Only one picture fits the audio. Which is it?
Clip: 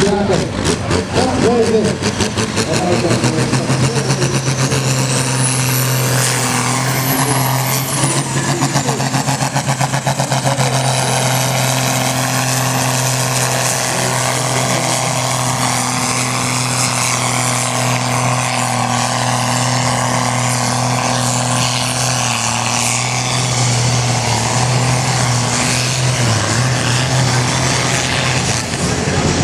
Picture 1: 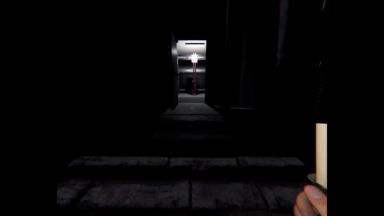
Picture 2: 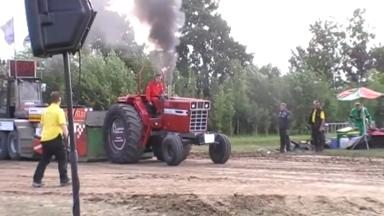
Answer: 2